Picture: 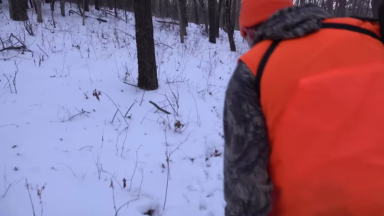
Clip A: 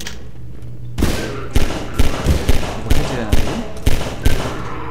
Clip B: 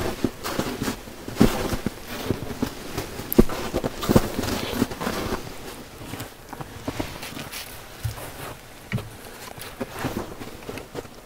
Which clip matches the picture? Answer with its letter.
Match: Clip B